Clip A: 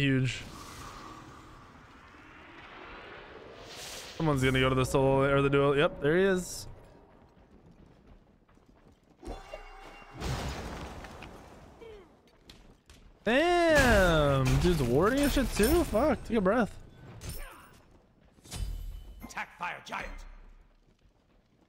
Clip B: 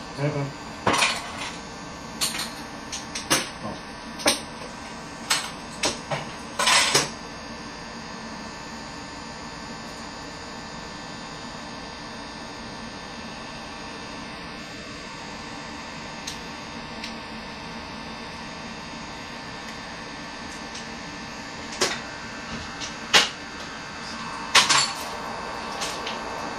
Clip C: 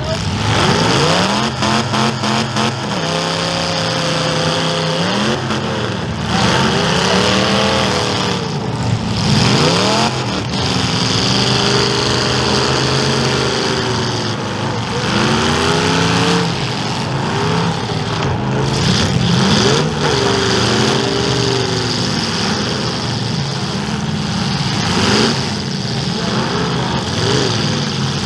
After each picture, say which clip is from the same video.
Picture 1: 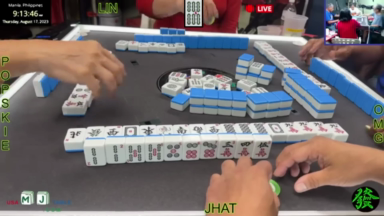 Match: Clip B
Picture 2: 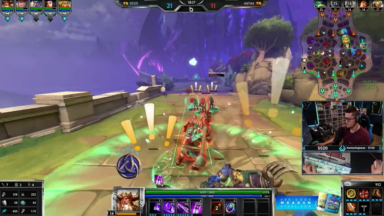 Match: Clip A